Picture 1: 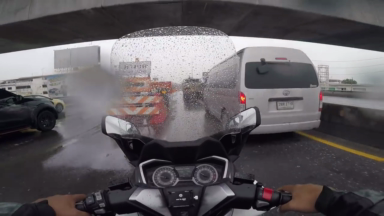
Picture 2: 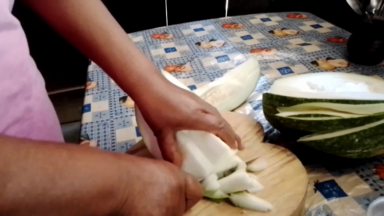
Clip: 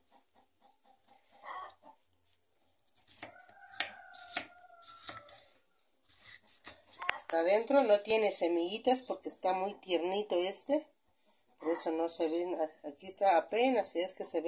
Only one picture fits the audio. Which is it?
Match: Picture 2